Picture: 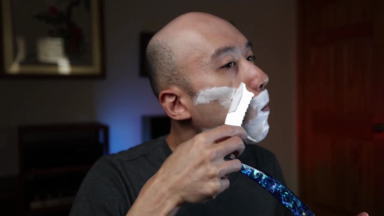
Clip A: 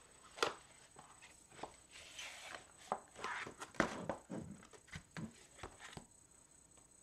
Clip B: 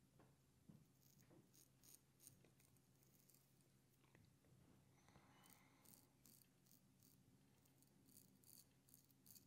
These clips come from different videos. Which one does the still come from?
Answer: B